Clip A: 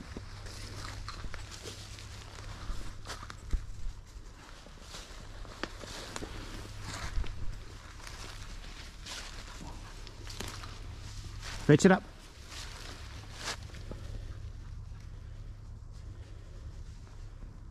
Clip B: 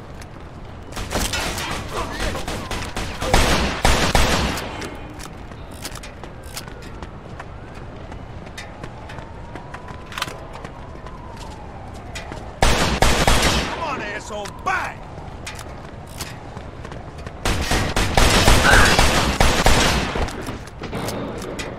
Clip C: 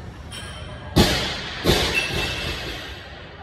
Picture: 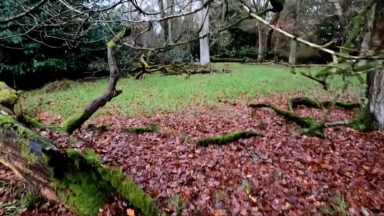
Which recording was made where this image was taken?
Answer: A